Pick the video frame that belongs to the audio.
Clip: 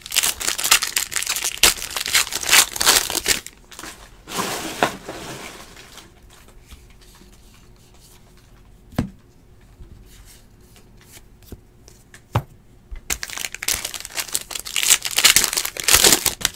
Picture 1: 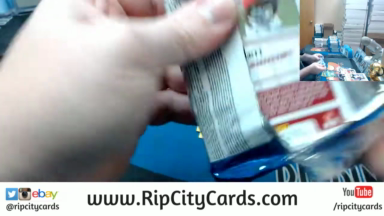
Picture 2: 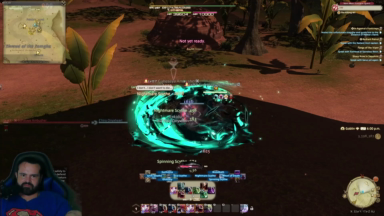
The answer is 1